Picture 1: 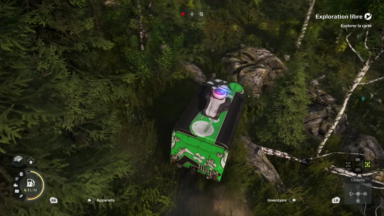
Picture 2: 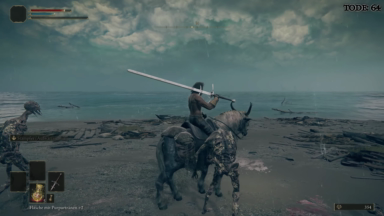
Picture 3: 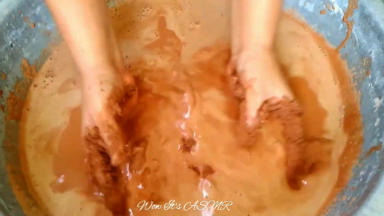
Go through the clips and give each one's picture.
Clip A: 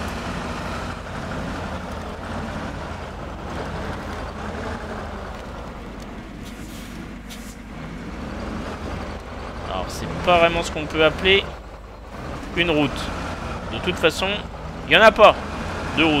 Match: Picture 1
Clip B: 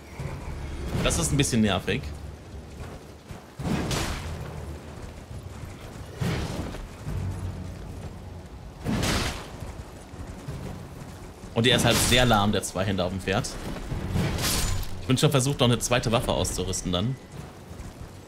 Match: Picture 2